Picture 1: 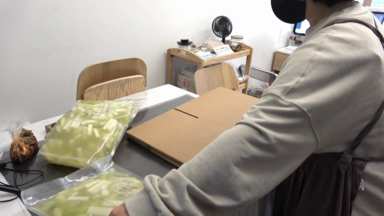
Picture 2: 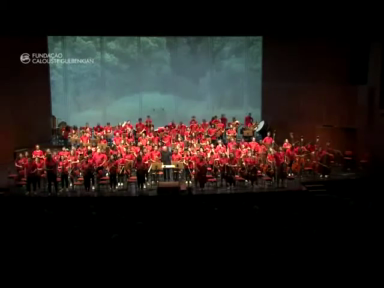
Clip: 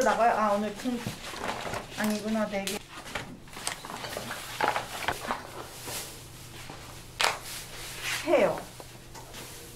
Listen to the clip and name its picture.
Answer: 1